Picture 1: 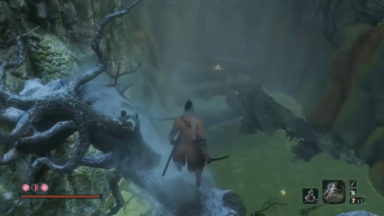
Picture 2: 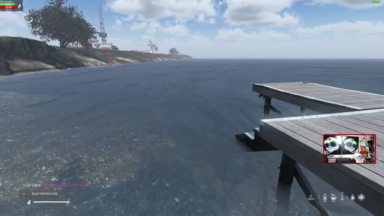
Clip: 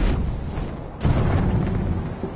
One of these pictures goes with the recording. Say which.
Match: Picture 1